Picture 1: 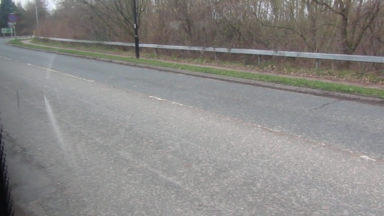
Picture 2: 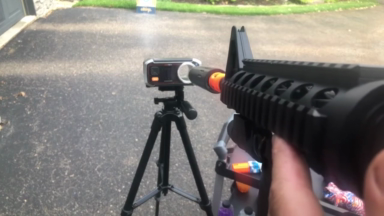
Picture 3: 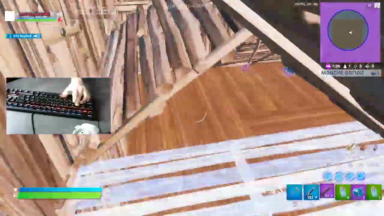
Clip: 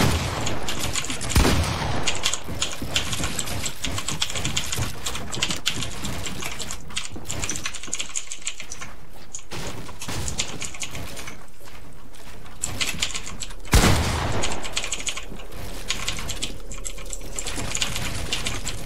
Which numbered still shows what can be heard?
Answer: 3